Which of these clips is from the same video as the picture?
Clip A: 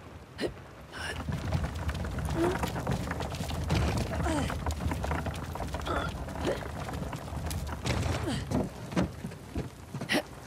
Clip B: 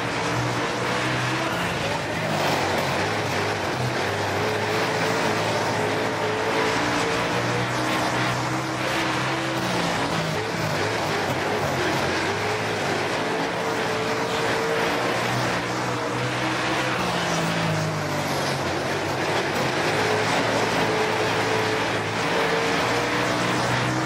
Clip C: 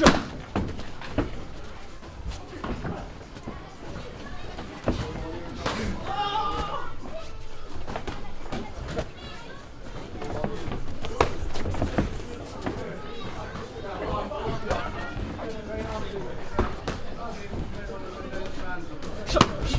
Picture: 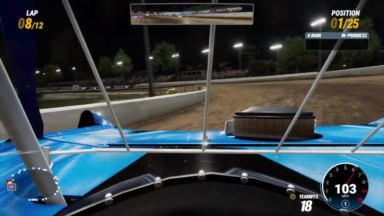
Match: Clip B